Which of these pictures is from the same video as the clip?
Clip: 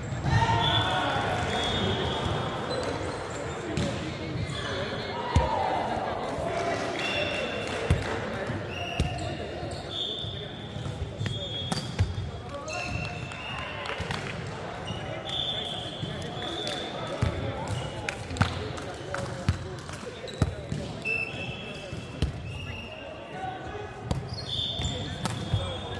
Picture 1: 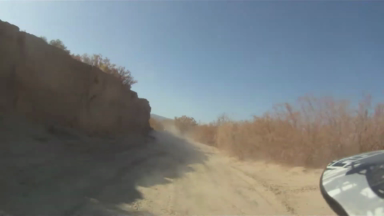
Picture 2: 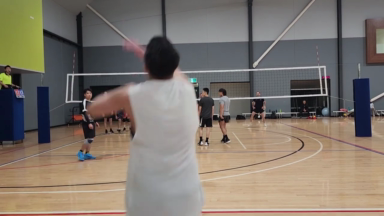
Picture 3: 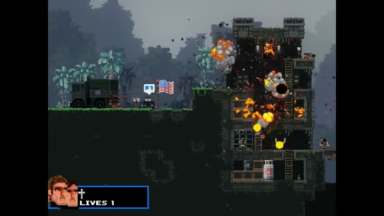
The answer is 2